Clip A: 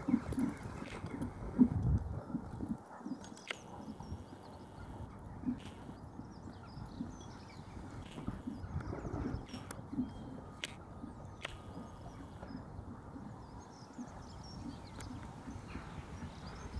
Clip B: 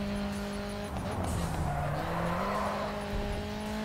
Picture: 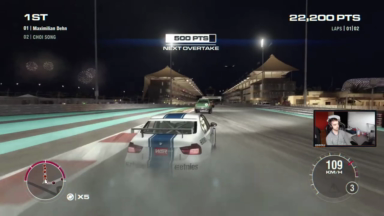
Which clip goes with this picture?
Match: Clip B